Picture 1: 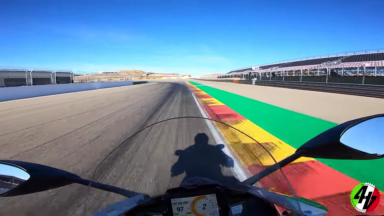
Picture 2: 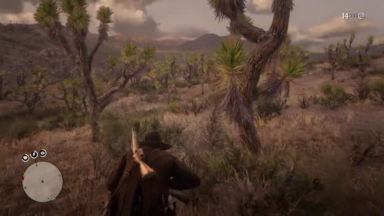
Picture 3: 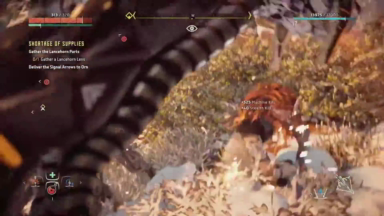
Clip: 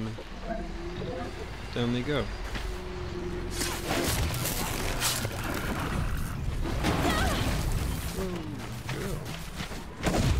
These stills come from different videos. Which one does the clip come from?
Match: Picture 3